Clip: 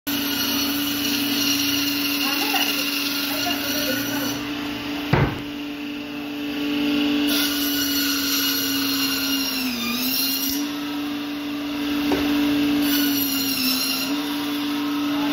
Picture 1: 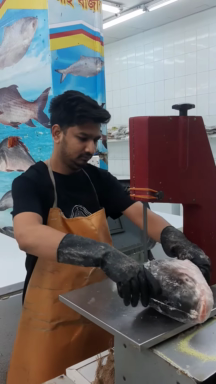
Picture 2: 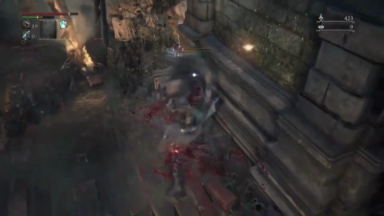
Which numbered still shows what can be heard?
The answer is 1